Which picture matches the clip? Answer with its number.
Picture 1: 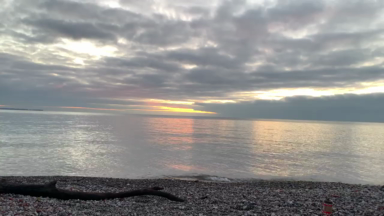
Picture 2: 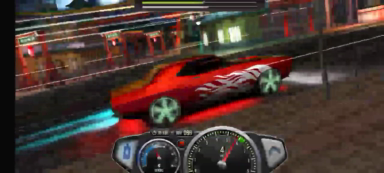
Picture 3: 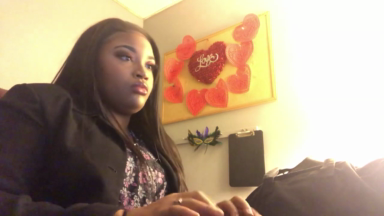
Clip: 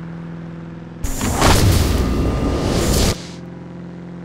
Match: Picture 2